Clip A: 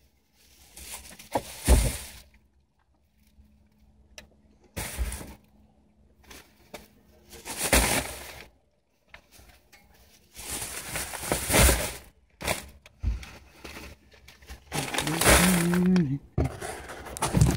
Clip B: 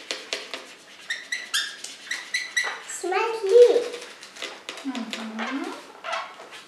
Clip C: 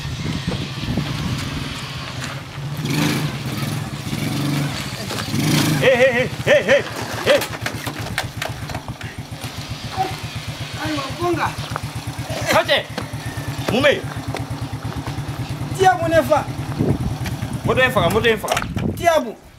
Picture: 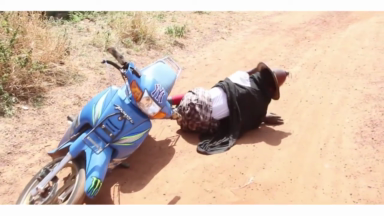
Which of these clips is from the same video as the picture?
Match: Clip C